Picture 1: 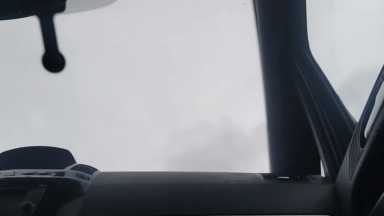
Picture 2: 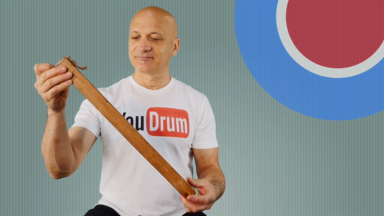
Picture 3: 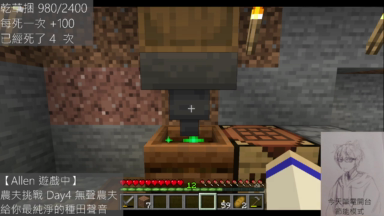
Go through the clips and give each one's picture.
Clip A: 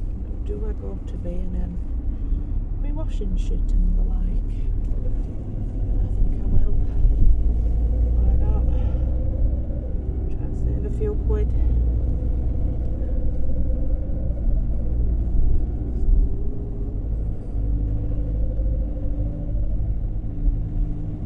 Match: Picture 1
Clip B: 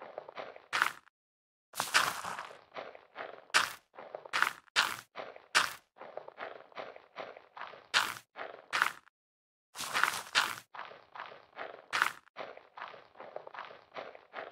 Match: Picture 3